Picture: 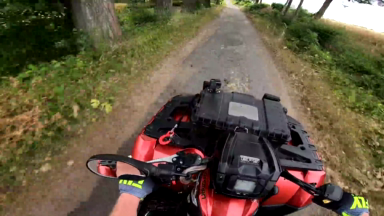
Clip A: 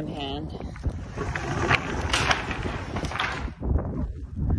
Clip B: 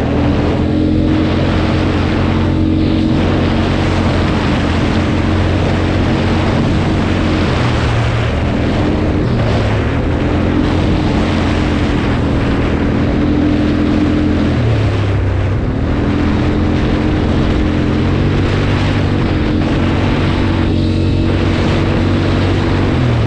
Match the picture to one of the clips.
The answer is B